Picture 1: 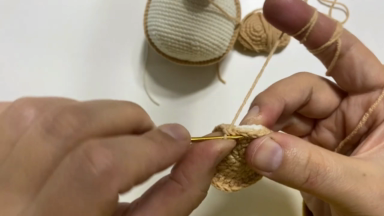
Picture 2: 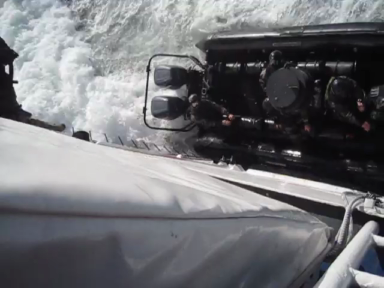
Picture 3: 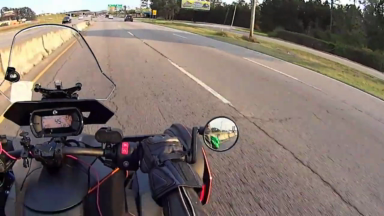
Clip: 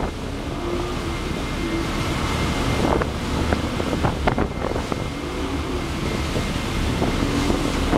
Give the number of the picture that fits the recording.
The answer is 2